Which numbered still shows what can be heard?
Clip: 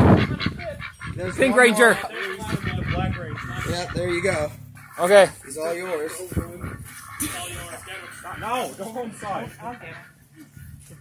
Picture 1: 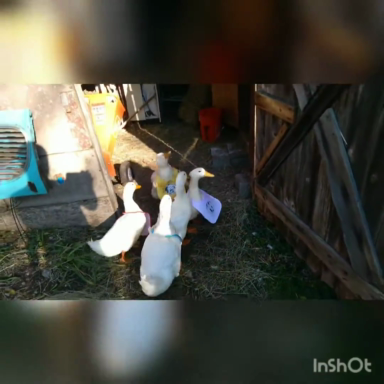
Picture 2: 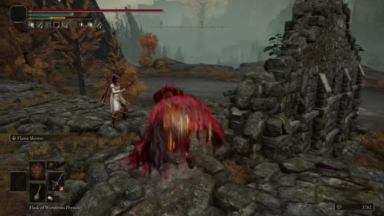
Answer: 1